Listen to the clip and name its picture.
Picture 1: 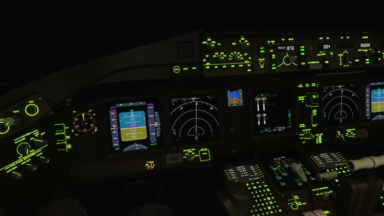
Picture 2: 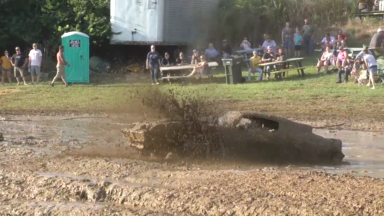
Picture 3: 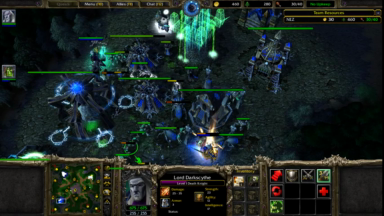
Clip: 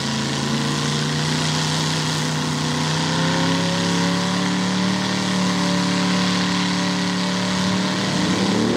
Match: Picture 2